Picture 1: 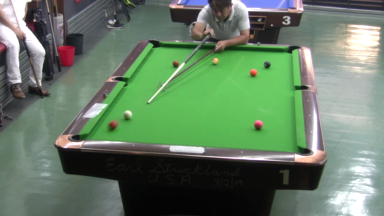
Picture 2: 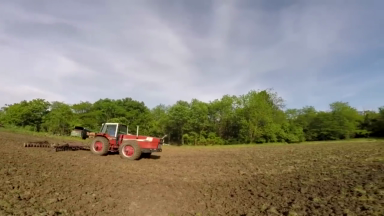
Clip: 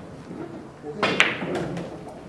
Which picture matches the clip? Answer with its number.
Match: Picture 1